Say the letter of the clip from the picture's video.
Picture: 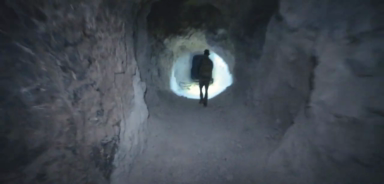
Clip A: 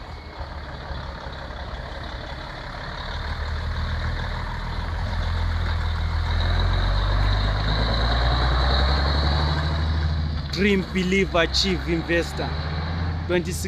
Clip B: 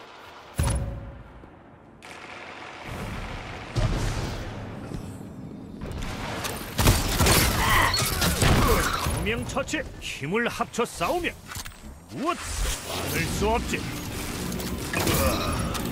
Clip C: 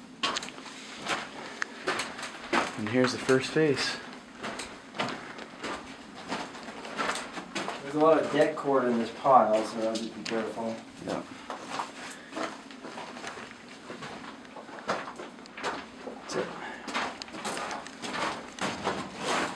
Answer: C